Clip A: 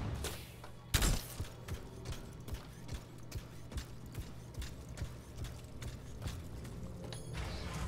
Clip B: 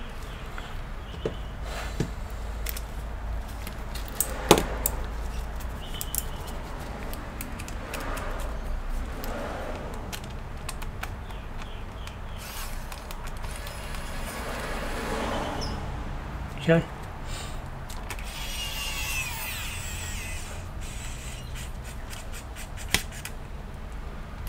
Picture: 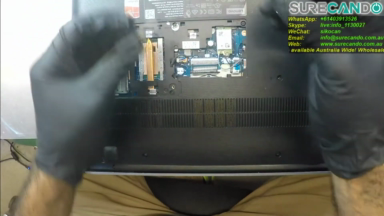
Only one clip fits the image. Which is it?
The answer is B